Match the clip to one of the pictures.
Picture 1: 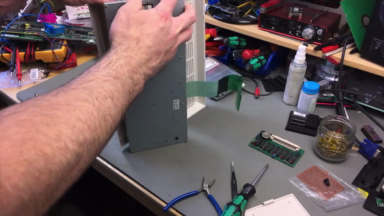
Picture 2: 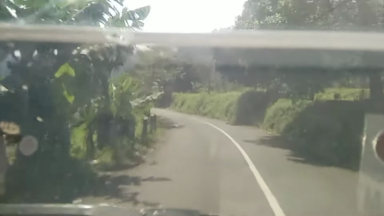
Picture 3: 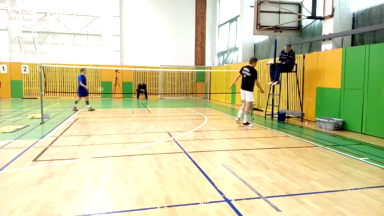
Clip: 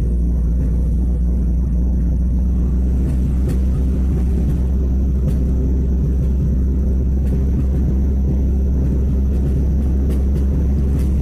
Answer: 2